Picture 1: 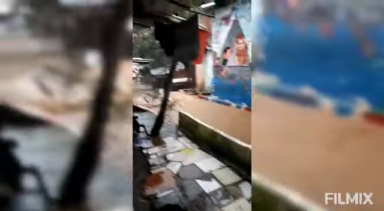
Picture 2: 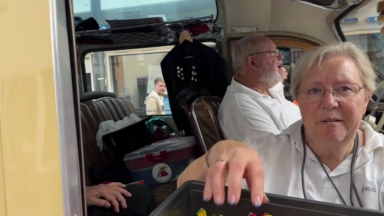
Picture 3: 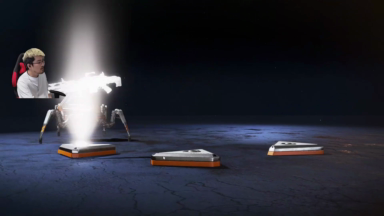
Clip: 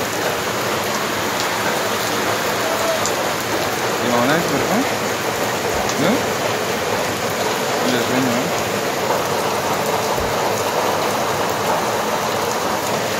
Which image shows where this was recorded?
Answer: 1